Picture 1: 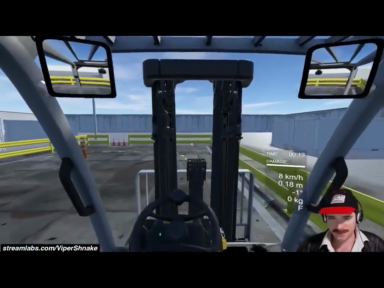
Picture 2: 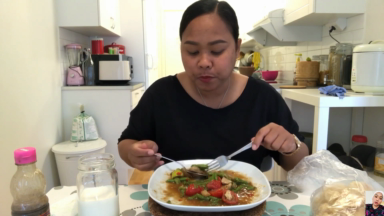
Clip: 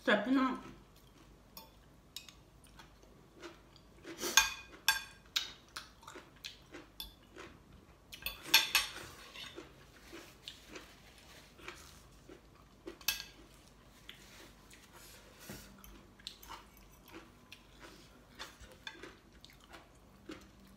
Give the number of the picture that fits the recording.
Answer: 2